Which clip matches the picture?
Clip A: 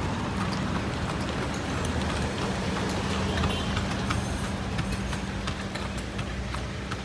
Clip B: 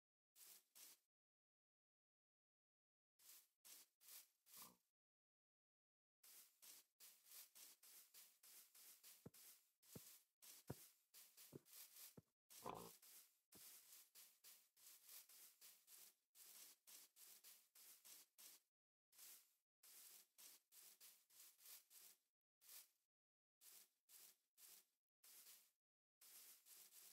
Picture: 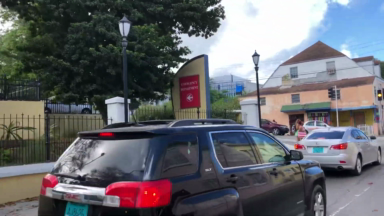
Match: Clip A